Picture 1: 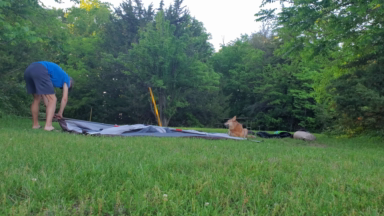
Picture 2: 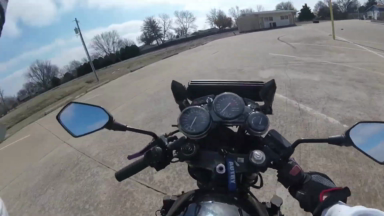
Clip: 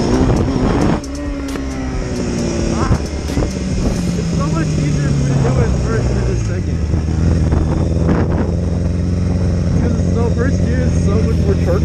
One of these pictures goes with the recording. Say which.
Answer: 2